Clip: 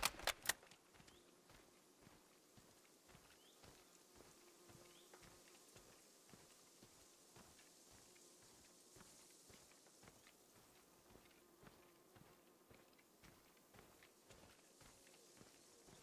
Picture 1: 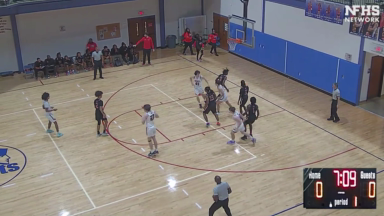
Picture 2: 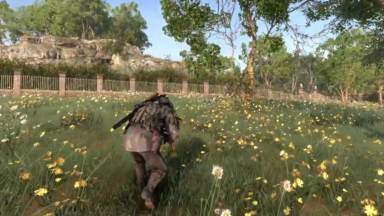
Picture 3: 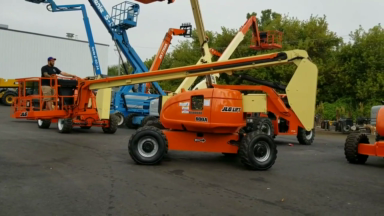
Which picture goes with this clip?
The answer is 2